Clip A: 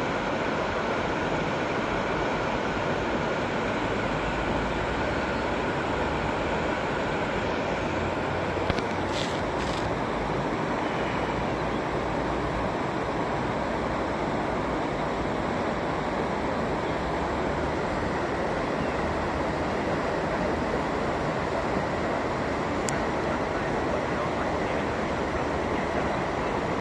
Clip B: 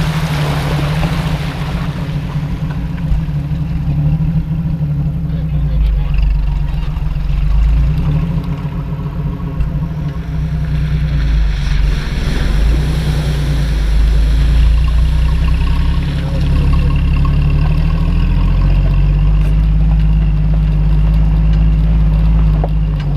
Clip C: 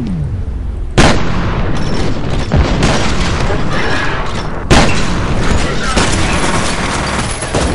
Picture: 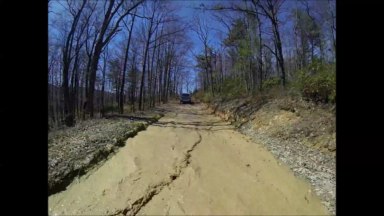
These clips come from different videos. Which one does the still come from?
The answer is B